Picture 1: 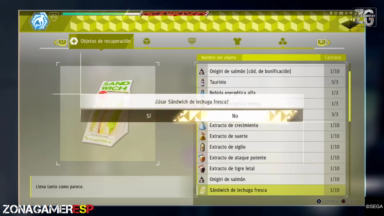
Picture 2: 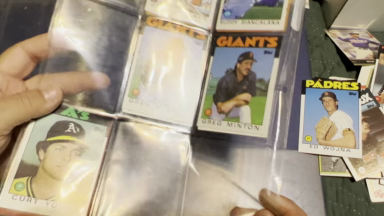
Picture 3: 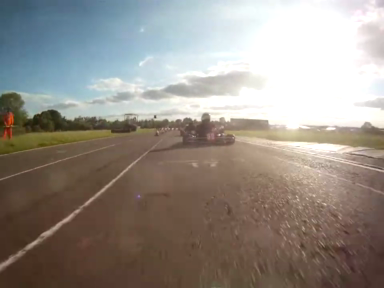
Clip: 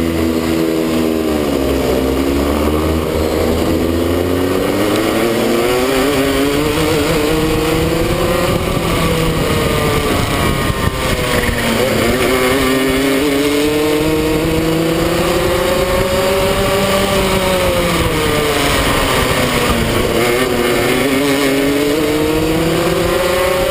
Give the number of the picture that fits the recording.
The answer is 3